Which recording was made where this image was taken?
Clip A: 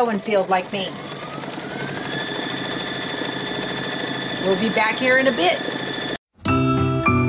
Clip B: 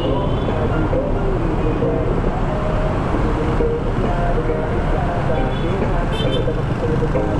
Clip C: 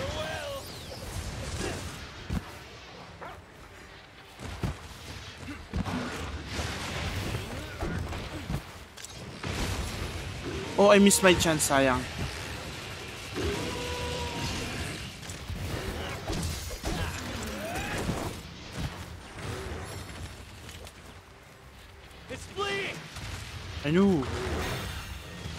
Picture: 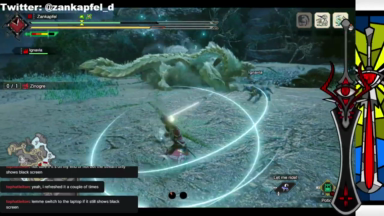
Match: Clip C